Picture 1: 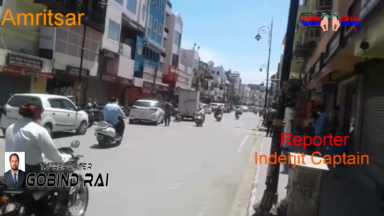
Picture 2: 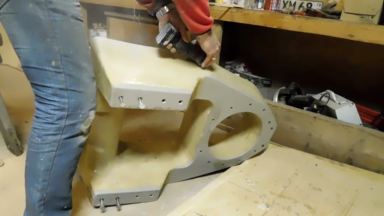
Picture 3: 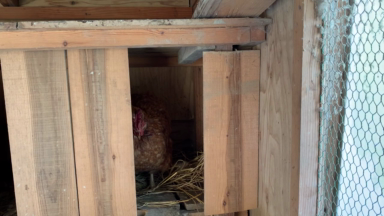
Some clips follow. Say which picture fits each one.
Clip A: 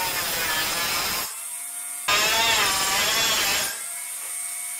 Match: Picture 2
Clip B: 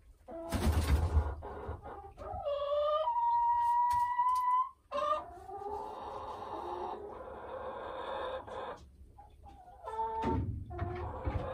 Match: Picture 3